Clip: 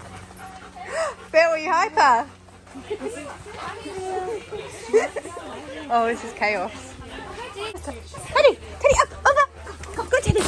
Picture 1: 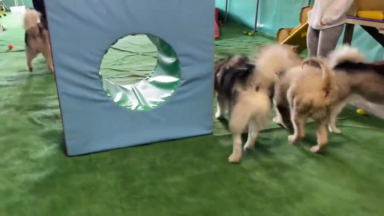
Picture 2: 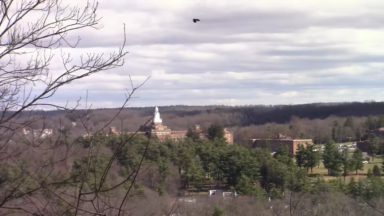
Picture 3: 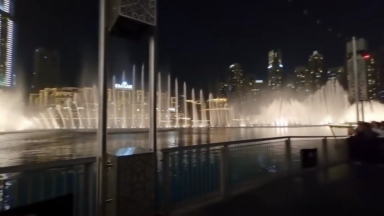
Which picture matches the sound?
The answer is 1